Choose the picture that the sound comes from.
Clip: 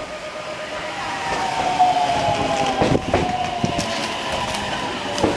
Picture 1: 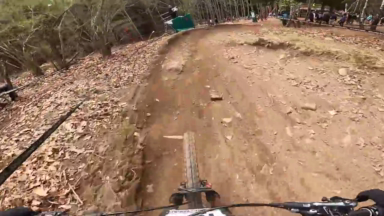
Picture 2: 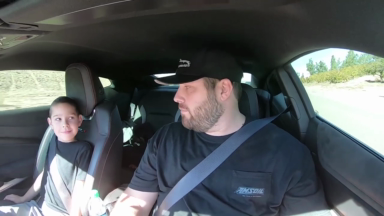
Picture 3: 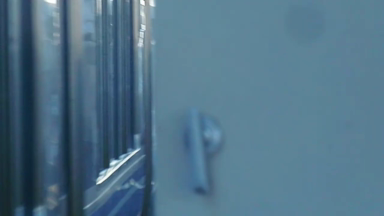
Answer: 3